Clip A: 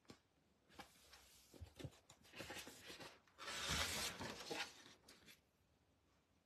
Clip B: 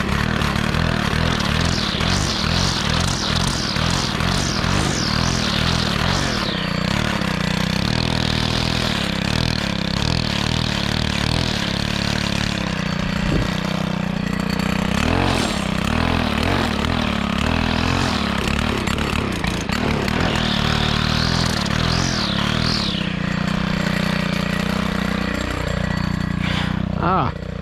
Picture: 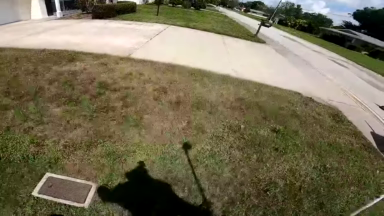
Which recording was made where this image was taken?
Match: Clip B